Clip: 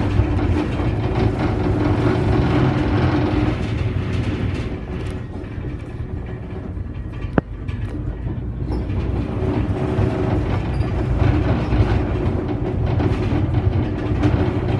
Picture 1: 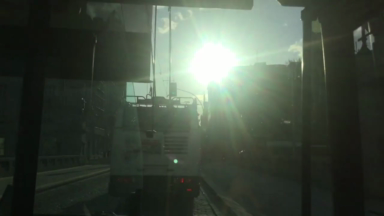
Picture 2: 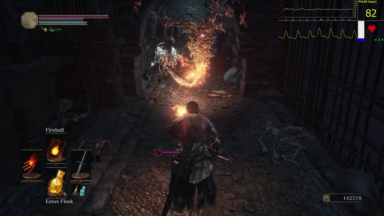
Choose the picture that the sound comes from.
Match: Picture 1